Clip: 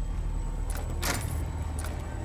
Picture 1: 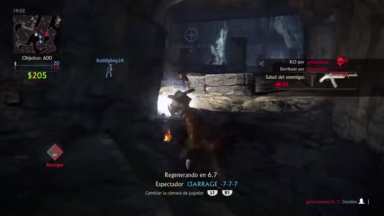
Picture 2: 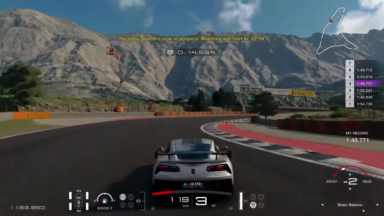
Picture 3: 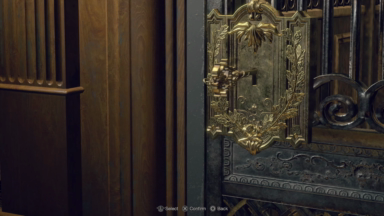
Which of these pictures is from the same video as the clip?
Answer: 3